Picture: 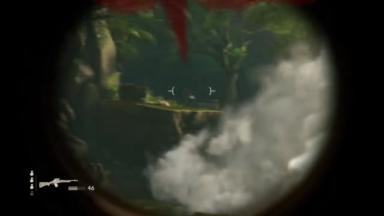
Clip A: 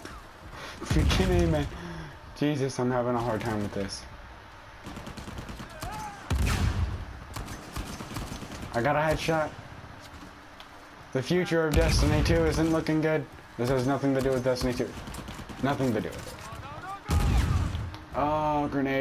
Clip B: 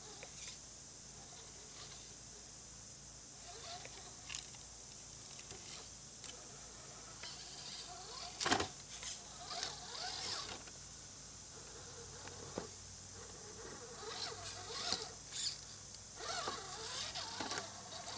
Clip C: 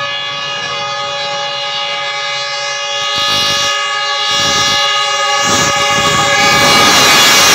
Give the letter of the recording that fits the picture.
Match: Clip A